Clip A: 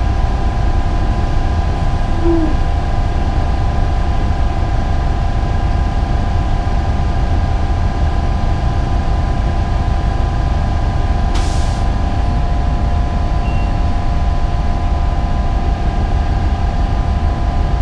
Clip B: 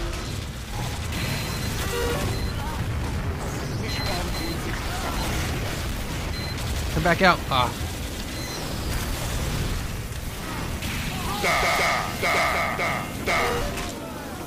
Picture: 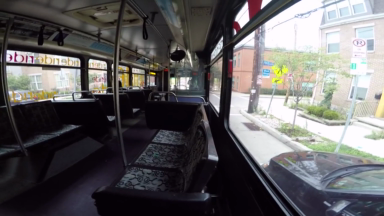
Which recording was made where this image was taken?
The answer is A